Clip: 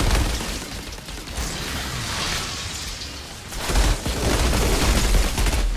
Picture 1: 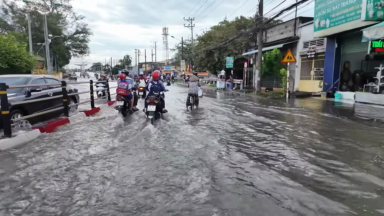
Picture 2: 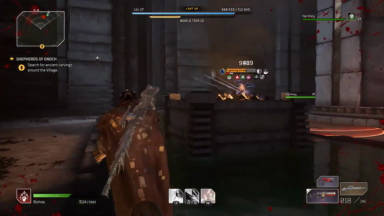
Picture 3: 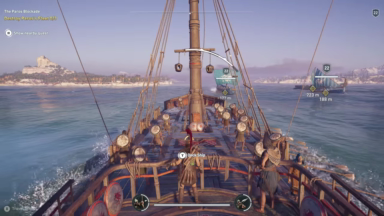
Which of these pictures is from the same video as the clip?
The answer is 2